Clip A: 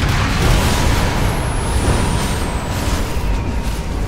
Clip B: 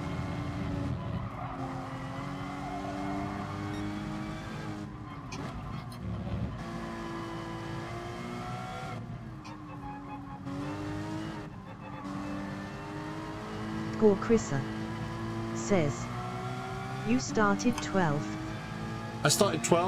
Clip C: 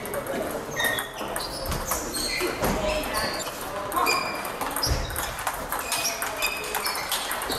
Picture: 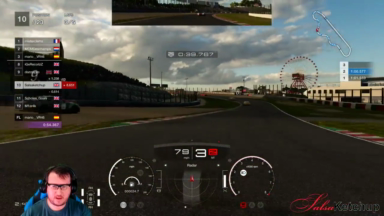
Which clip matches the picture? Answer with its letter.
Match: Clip B